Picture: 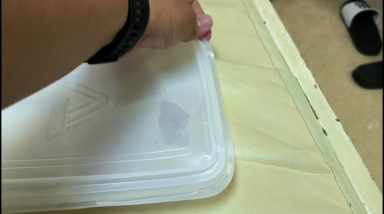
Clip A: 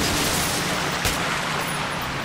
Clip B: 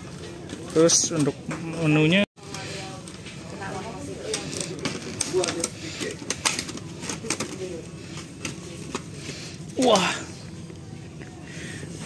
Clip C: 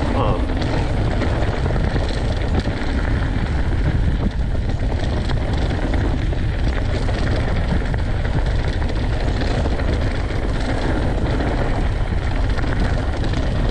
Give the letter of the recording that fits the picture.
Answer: B